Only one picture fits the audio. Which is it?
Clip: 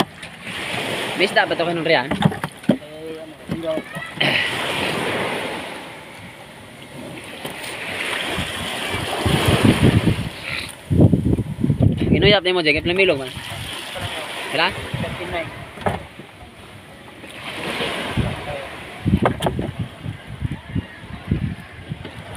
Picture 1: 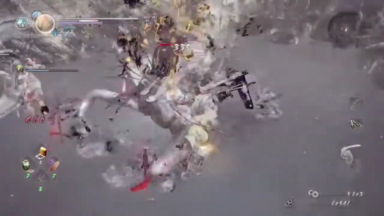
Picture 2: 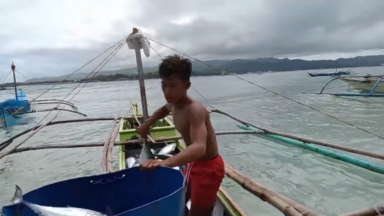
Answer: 2